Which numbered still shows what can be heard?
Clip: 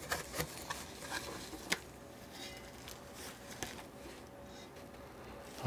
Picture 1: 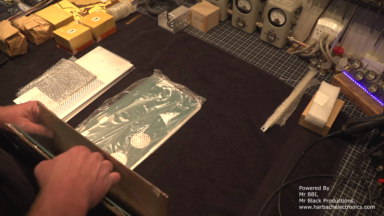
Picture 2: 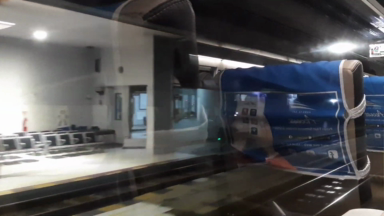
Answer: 1